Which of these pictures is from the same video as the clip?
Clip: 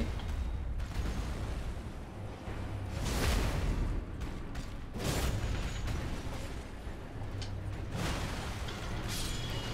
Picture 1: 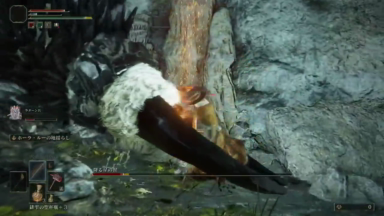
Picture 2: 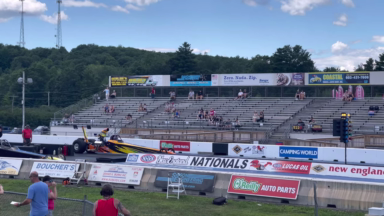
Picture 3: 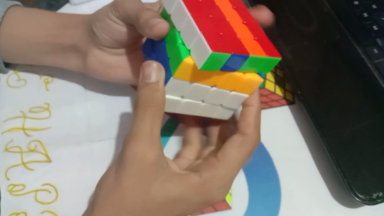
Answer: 1